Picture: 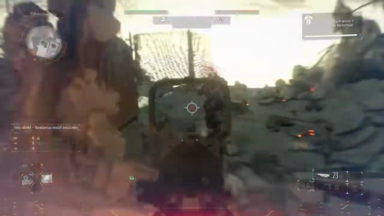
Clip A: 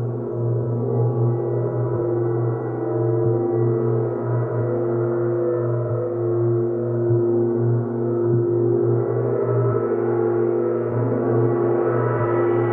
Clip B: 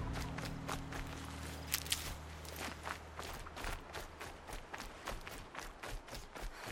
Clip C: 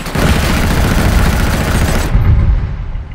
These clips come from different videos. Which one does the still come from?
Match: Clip C